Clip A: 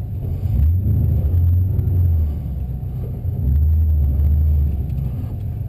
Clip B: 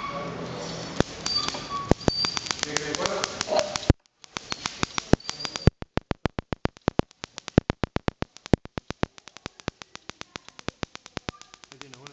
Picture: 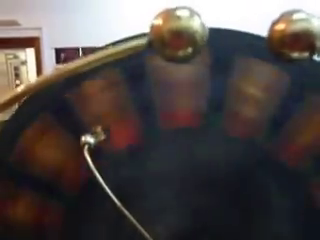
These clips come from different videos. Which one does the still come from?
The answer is B